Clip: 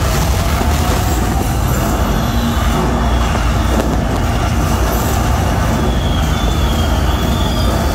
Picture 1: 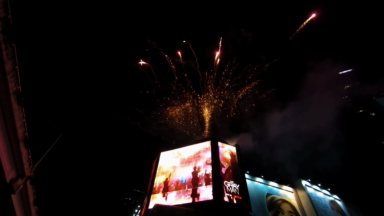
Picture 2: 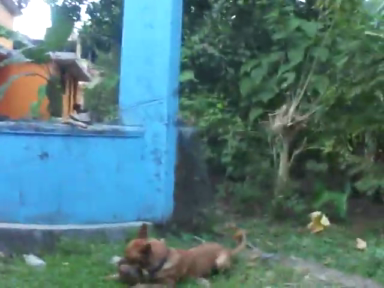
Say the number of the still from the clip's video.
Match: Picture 1